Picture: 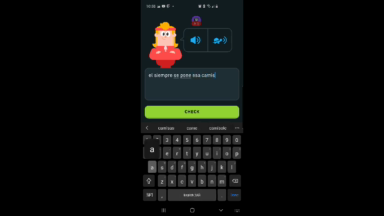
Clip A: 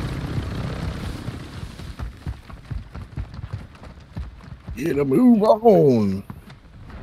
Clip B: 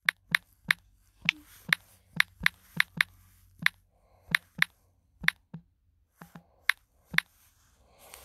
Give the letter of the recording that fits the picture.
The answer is B